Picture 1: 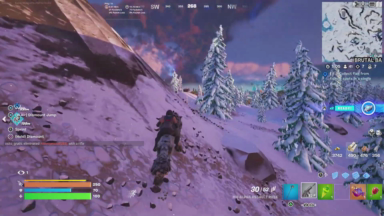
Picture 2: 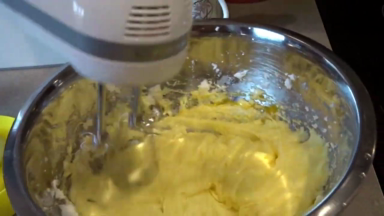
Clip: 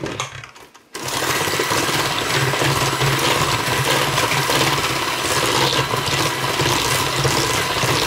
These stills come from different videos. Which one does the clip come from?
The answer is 2